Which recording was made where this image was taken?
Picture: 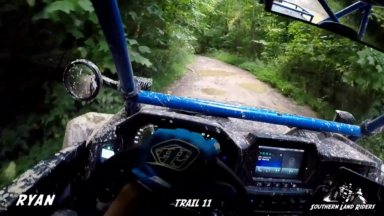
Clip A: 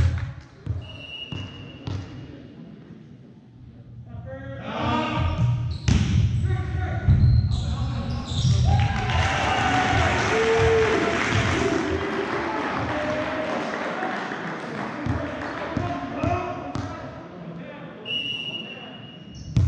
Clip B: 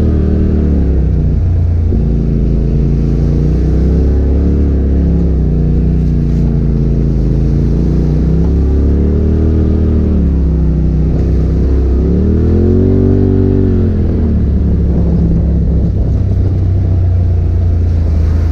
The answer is B